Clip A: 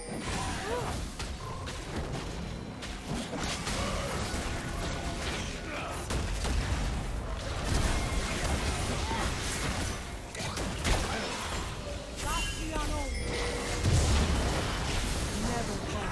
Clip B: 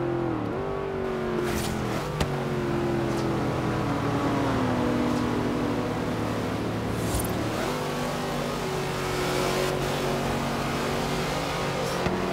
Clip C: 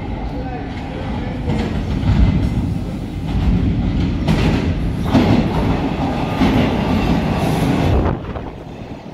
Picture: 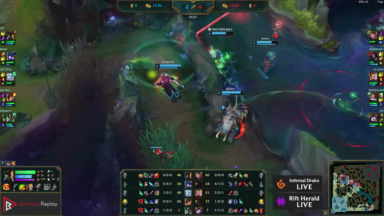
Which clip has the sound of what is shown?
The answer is A